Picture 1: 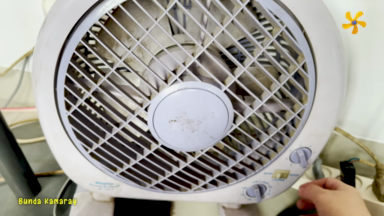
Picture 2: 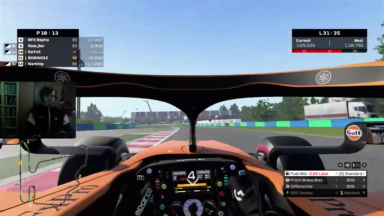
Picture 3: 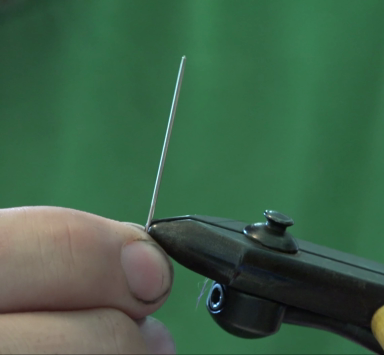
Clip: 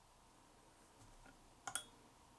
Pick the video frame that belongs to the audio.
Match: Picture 3